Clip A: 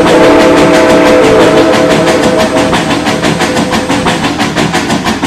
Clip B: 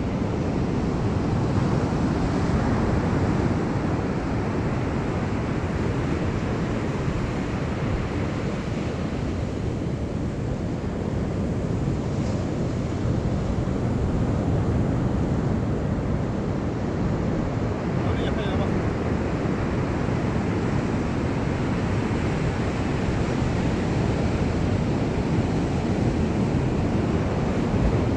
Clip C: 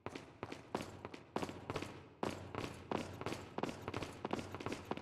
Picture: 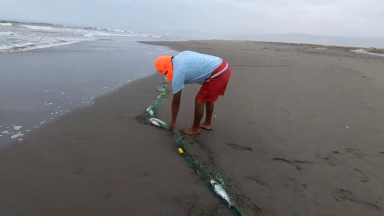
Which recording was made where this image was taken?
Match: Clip B